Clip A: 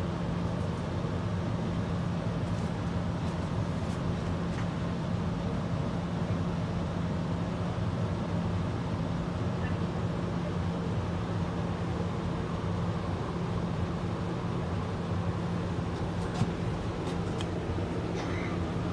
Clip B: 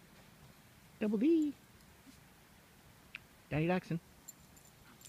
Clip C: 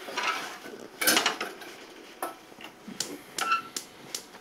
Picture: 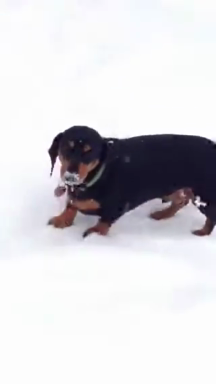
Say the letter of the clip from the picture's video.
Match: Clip B